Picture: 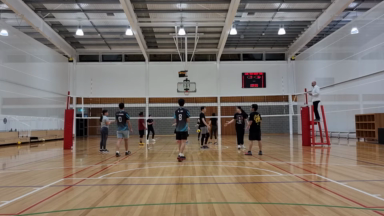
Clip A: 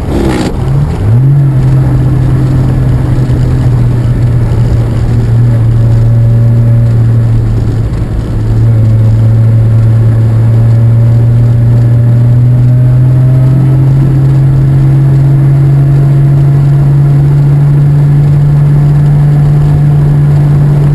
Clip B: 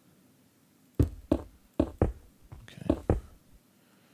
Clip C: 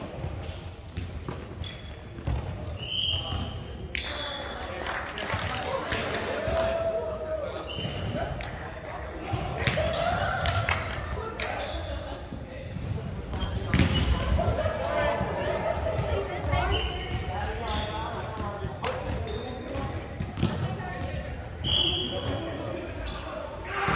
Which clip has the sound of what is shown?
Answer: C